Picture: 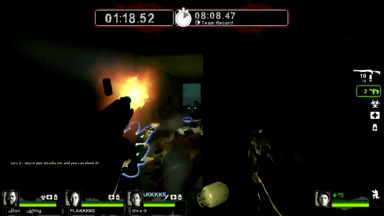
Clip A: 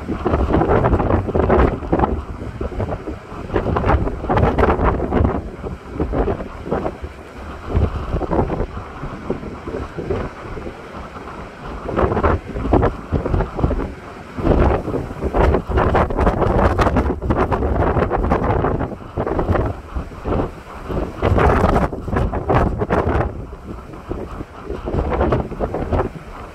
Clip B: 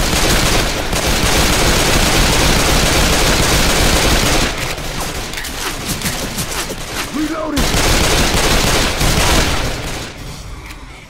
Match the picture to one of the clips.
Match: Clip B